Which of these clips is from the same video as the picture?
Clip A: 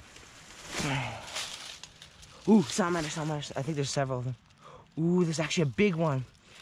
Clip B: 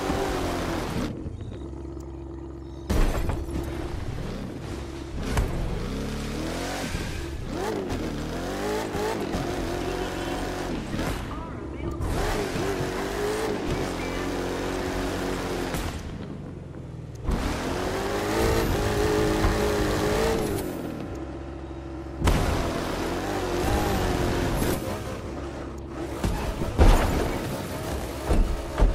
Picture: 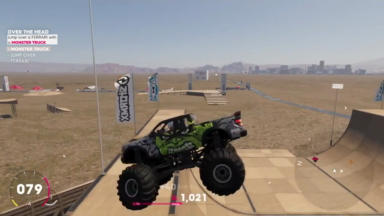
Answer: B